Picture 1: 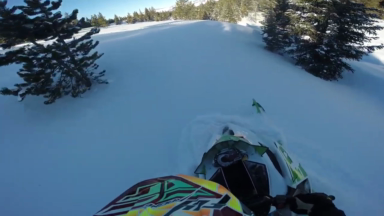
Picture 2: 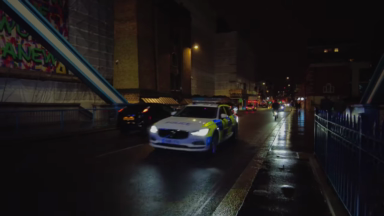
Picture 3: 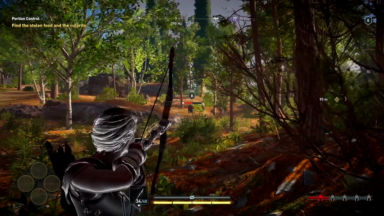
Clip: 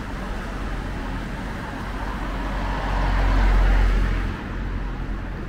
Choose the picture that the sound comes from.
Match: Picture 2